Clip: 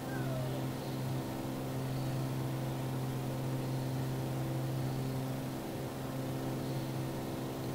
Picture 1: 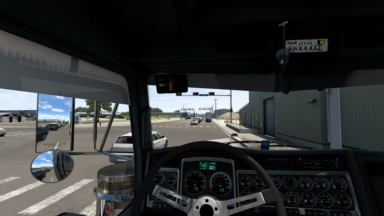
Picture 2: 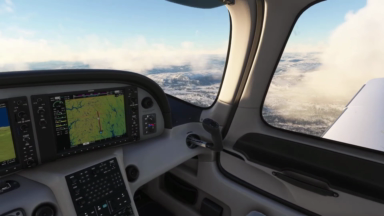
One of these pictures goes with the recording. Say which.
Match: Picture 2